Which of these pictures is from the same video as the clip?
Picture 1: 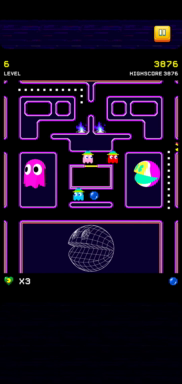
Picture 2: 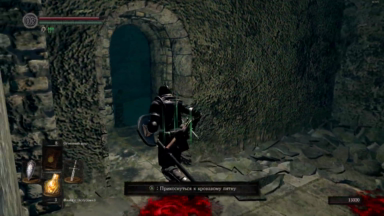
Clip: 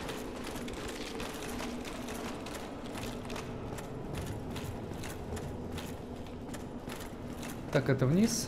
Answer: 2